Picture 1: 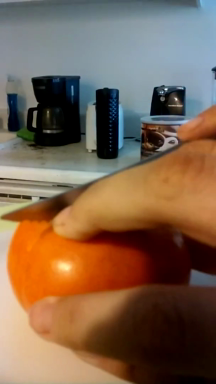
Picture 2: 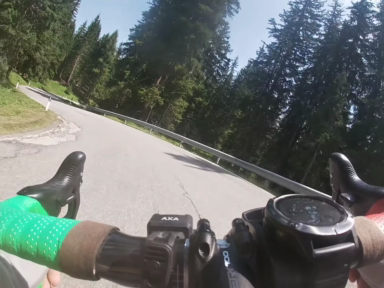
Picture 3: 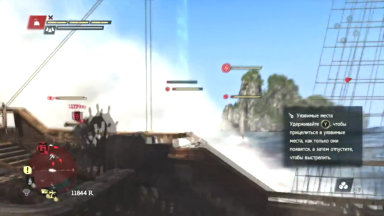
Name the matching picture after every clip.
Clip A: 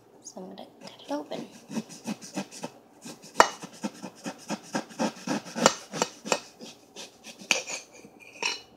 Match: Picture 1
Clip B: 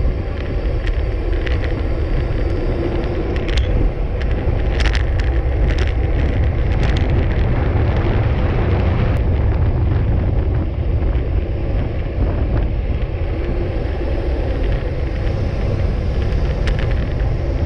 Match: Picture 2